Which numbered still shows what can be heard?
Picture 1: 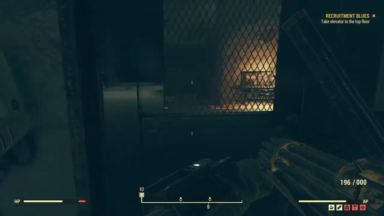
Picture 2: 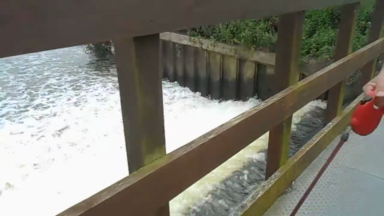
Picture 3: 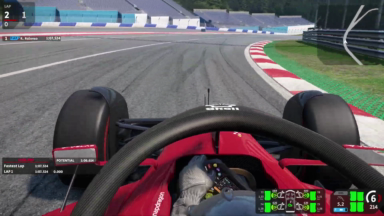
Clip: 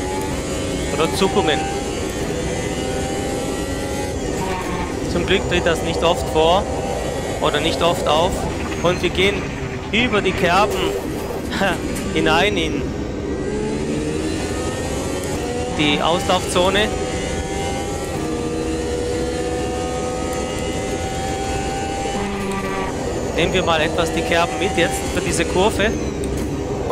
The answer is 3